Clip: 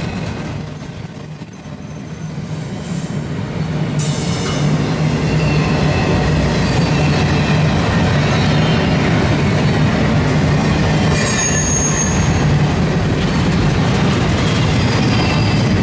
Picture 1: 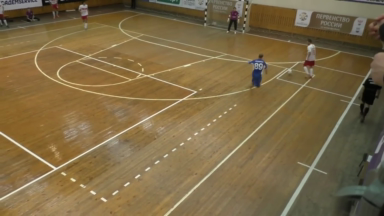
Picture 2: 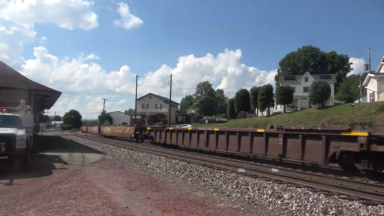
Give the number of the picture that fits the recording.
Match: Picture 2